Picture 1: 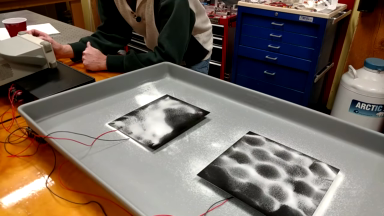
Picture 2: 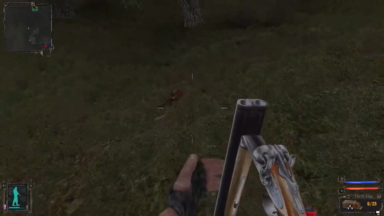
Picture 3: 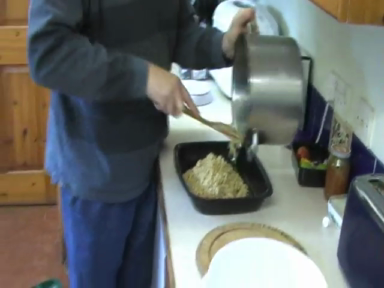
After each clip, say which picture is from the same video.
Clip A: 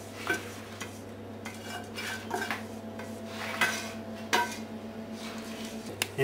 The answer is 3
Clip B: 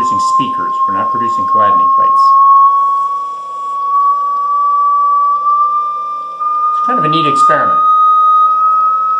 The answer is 1